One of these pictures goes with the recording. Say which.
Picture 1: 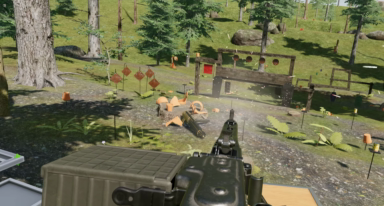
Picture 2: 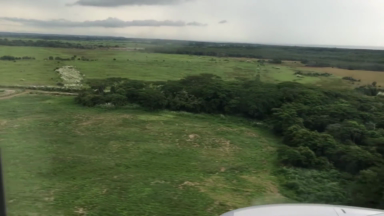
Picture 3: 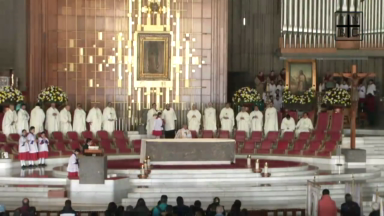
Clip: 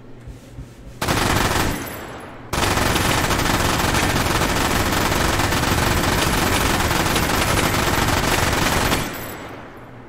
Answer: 1